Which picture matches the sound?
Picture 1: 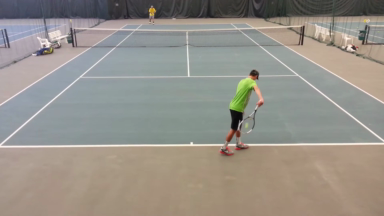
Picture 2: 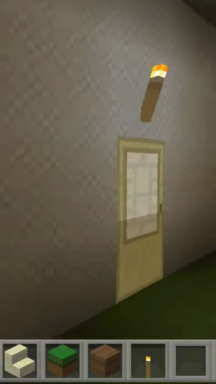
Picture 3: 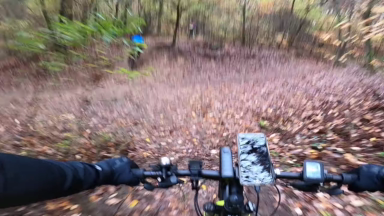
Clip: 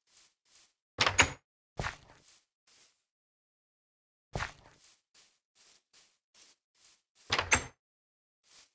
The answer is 2